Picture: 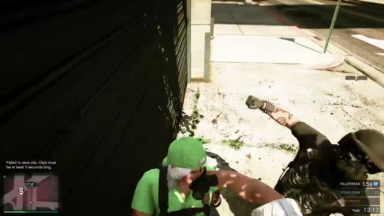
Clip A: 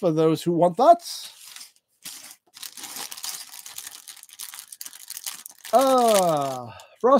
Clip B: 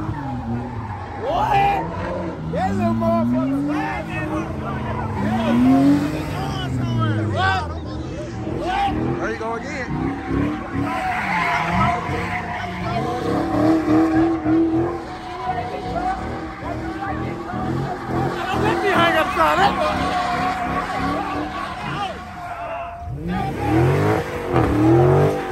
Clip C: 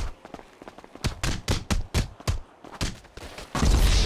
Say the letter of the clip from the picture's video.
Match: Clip C